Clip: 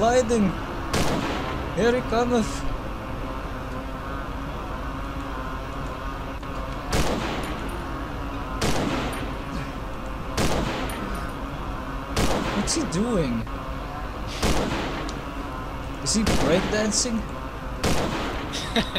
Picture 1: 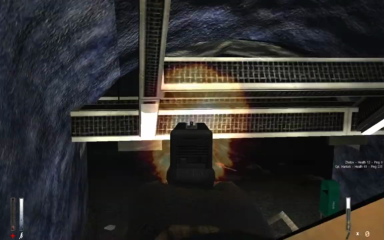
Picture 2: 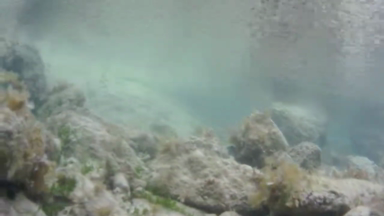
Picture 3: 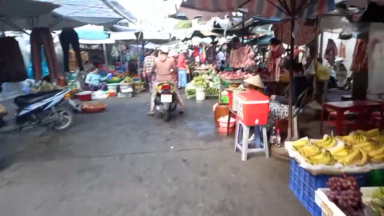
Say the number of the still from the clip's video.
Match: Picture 1